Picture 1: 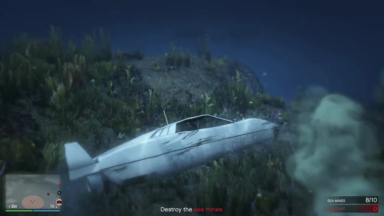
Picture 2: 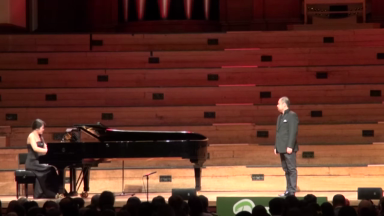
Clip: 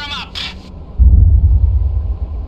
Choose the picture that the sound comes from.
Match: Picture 1